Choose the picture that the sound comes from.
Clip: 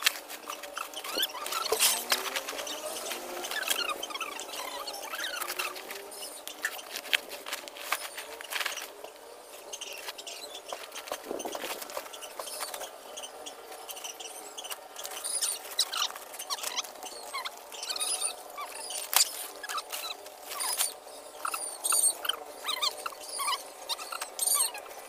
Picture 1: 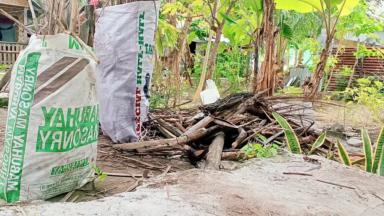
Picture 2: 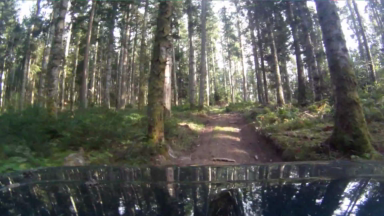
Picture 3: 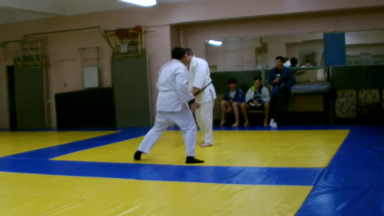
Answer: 1